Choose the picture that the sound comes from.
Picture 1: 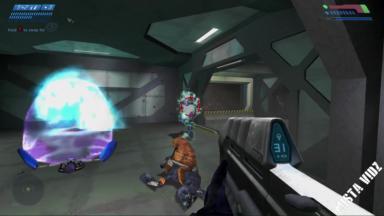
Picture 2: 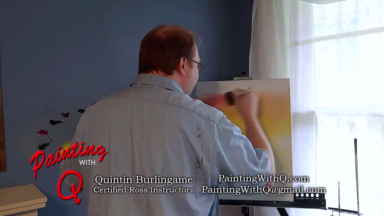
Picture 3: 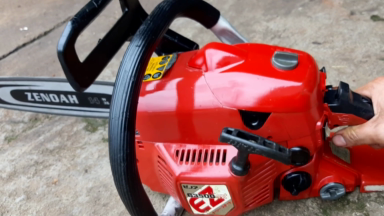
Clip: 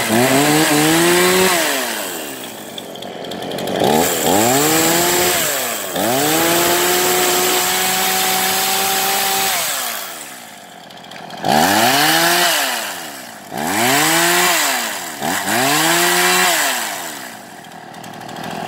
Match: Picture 3